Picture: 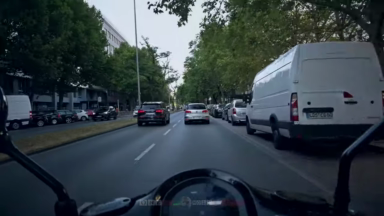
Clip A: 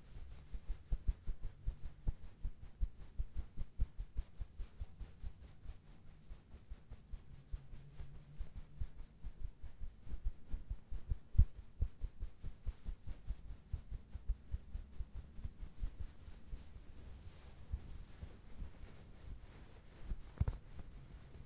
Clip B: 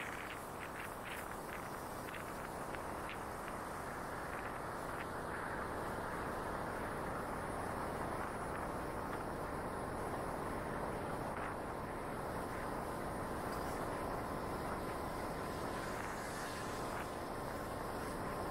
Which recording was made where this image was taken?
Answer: B